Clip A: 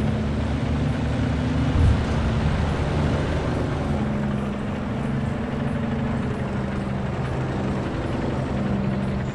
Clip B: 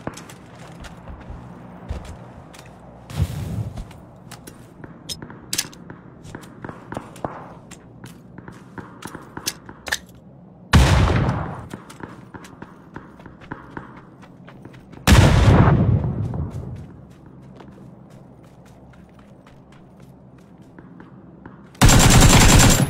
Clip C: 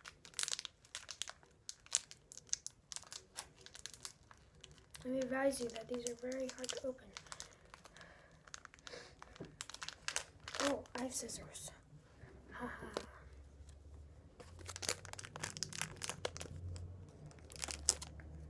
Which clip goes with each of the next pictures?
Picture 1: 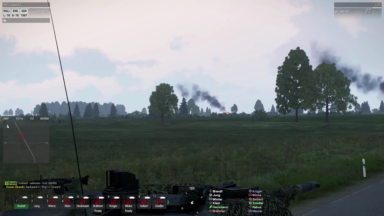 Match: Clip A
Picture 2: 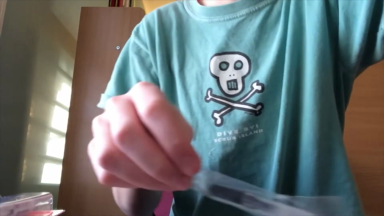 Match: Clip C